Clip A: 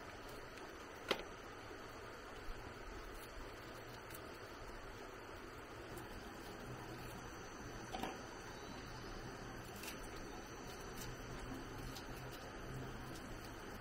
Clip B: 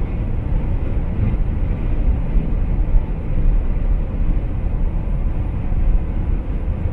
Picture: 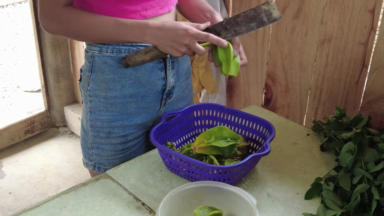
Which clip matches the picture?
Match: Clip A